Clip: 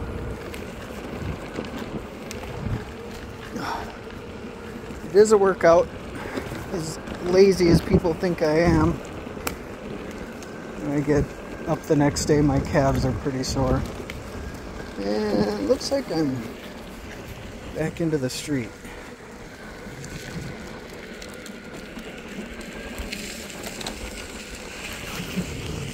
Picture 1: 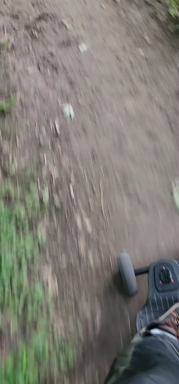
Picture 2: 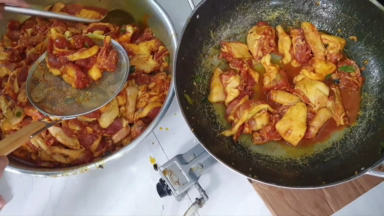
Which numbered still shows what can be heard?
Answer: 1